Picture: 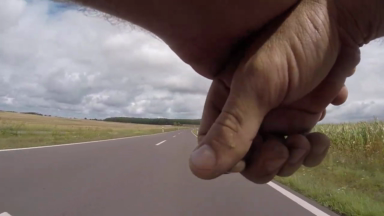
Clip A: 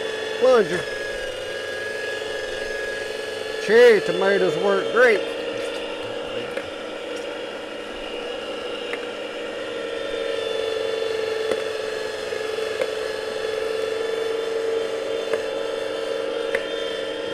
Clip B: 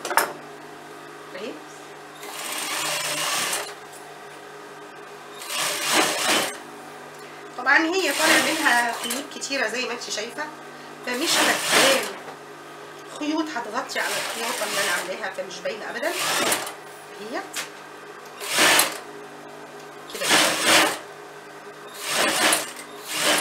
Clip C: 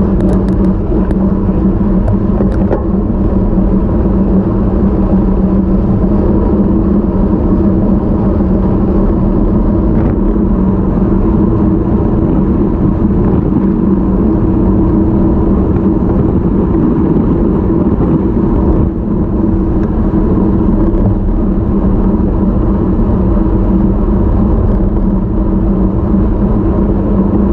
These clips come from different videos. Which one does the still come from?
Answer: C